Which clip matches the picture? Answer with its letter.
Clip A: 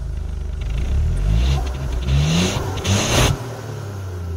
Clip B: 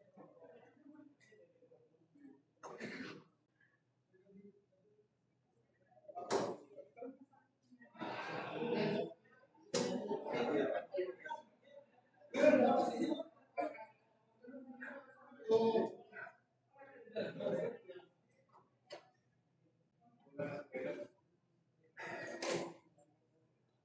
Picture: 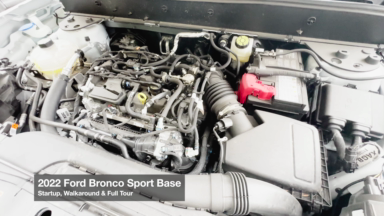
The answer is A